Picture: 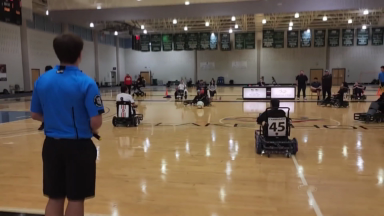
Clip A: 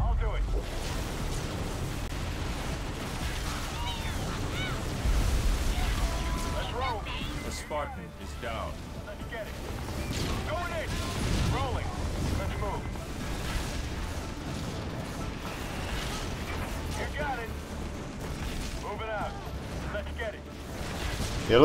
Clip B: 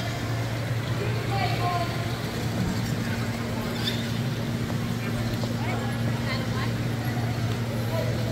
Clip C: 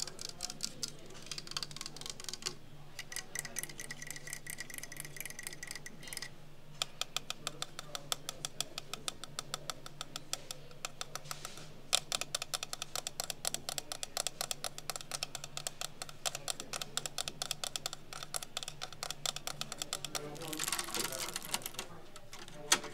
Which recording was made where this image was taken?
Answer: B